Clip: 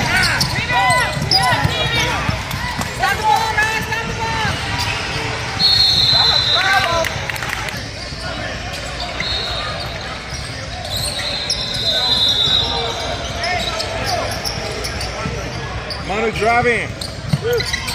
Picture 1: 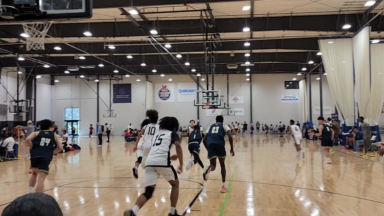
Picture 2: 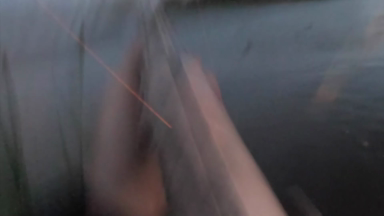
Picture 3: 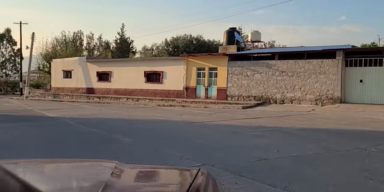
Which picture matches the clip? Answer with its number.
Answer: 1